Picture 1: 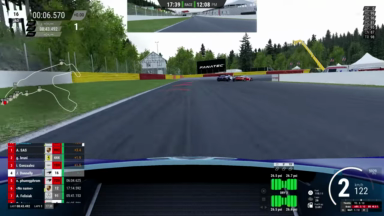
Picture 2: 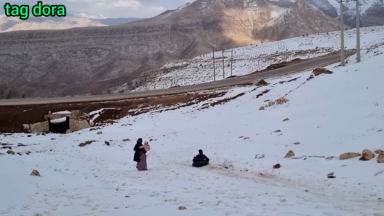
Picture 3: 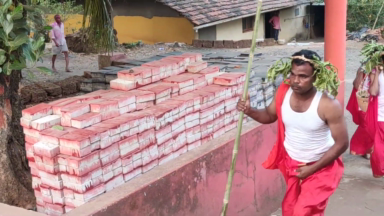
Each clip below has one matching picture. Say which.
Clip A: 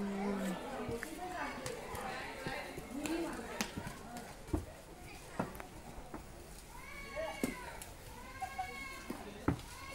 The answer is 3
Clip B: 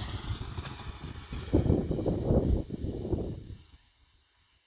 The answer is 2